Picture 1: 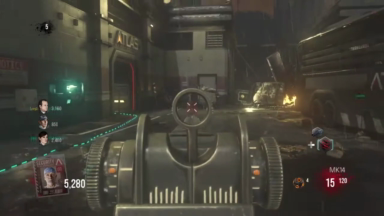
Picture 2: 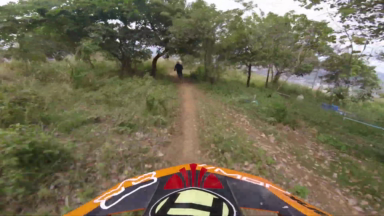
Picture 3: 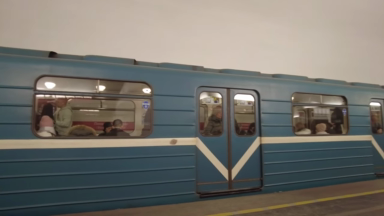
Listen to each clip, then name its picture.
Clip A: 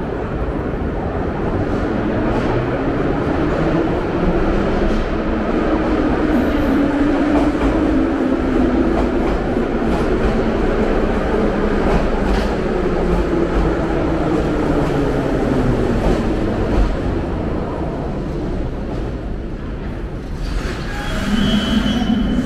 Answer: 3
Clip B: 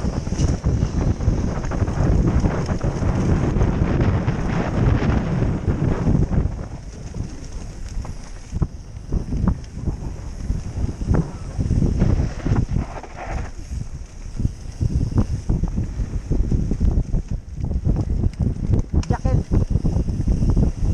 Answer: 2